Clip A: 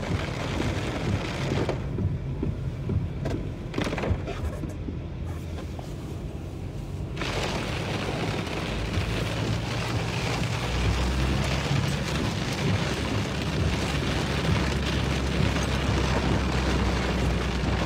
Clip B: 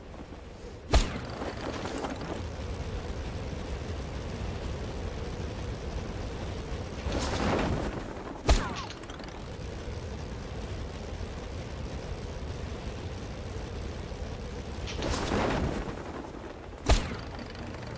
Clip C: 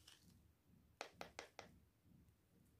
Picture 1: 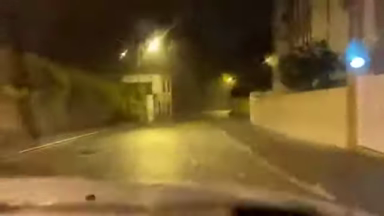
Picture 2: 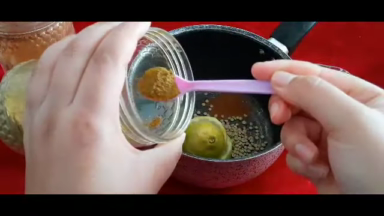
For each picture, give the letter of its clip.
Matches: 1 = A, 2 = C